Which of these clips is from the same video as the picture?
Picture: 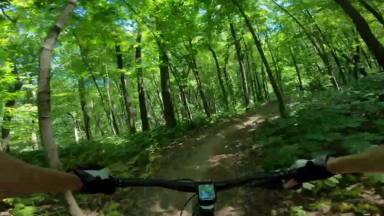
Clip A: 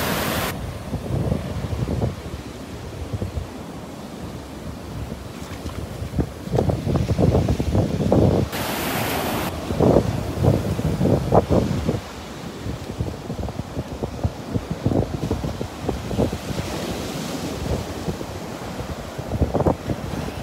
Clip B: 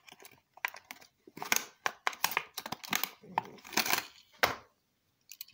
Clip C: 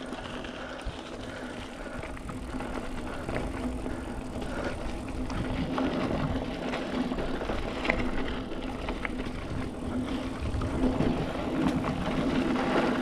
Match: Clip C